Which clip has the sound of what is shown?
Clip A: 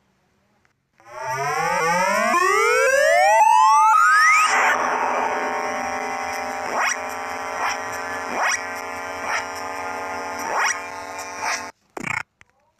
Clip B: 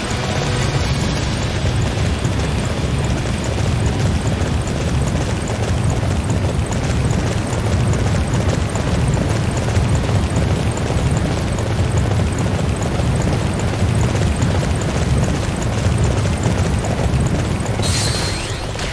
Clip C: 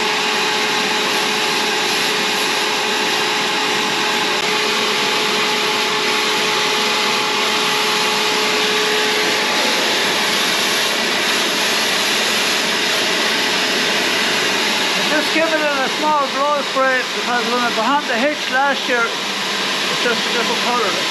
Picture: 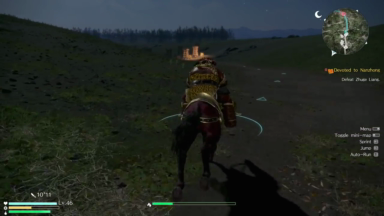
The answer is B